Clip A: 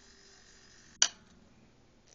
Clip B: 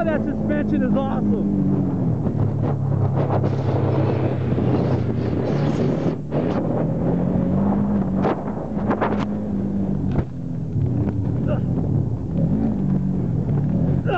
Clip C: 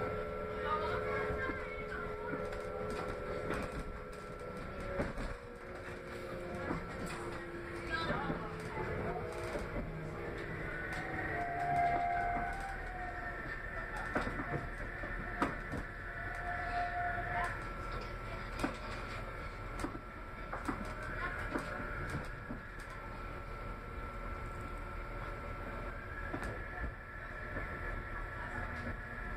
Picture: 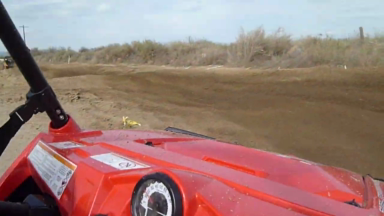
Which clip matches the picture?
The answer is B